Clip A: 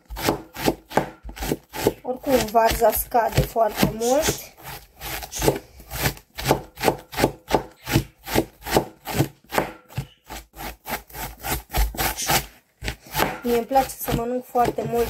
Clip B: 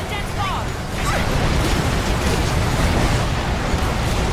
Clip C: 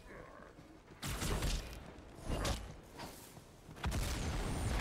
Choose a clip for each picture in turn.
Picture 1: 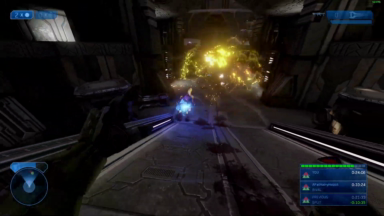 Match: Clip C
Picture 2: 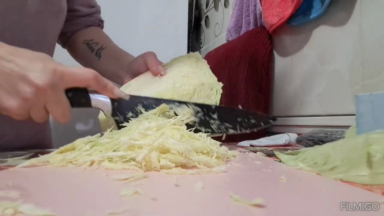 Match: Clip A